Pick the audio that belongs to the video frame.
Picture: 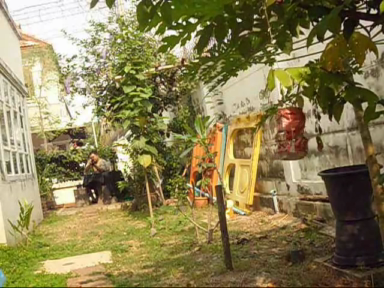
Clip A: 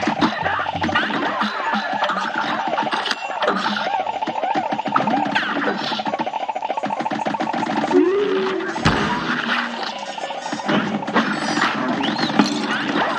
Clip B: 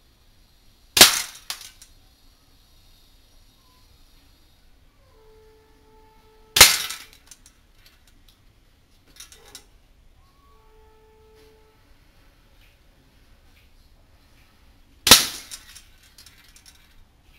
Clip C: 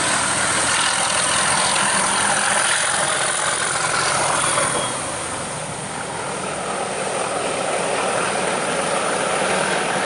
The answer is B